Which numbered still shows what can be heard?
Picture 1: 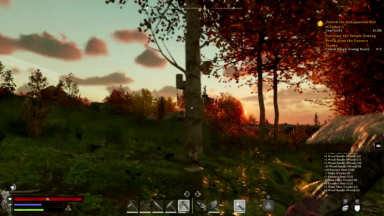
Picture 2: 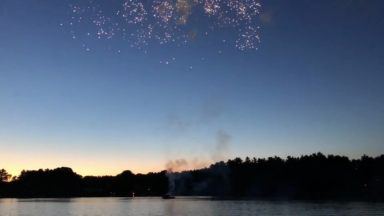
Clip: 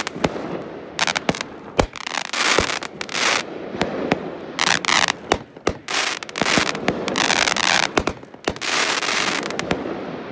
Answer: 2